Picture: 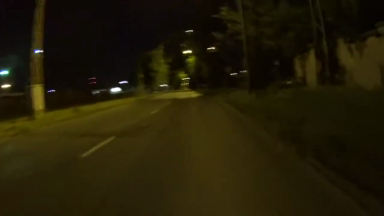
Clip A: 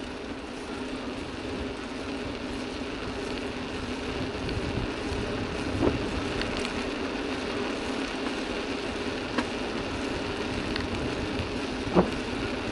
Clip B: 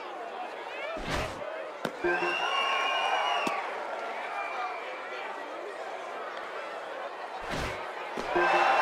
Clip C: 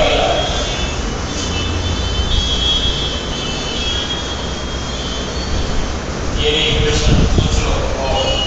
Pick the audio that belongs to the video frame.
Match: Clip A